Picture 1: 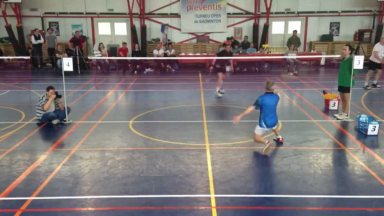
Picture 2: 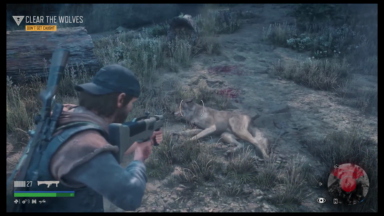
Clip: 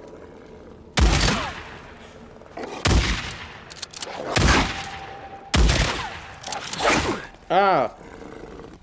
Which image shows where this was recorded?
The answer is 2